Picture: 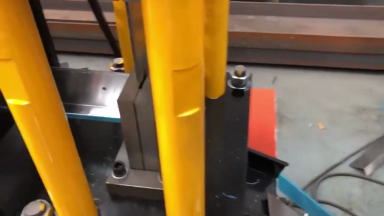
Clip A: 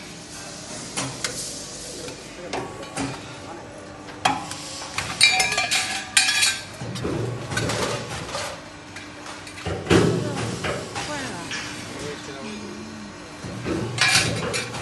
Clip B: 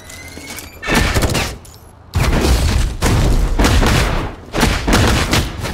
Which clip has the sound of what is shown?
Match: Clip A